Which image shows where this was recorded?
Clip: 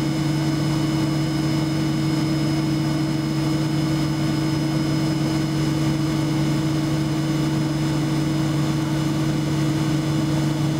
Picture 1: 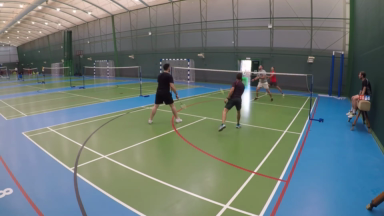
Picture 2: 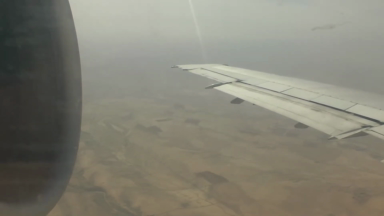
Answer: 2